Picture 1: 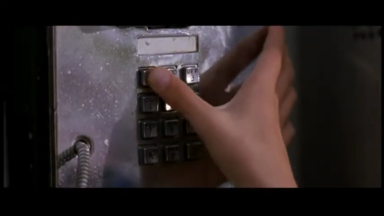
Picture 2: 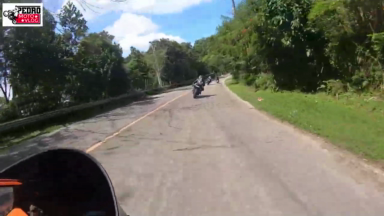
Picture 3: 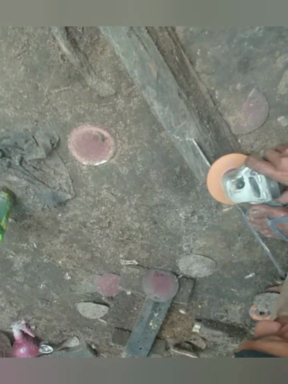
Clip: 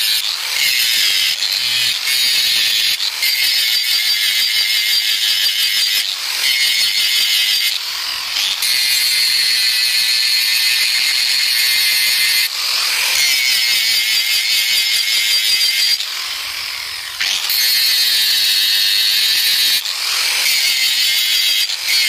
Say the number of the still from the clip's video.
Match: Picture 3